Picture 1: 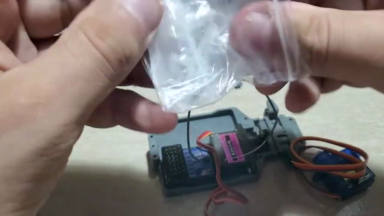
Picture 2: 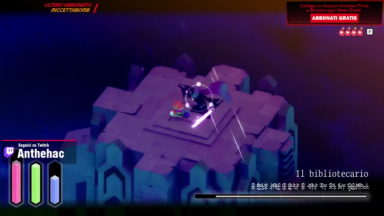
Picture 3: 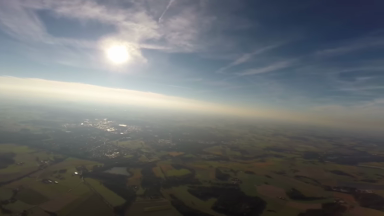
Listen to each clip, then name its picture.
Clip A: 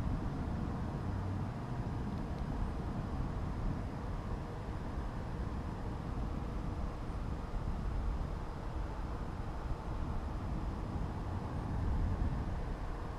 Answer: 3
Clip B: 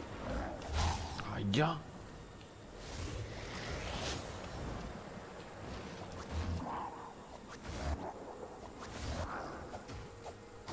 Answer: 2